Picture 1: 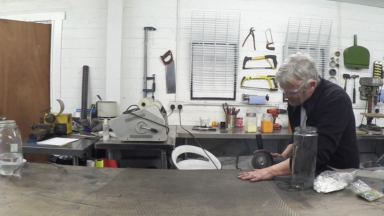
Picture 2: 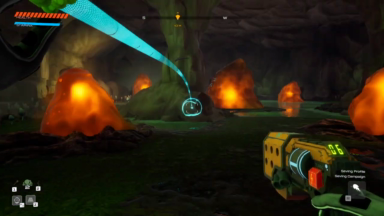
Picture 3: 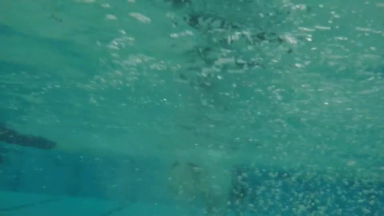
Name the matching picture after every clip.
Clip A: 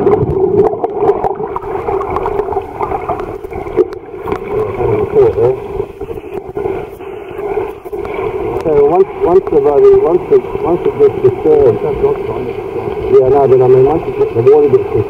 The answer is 3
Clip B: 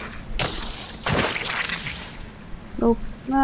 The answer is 2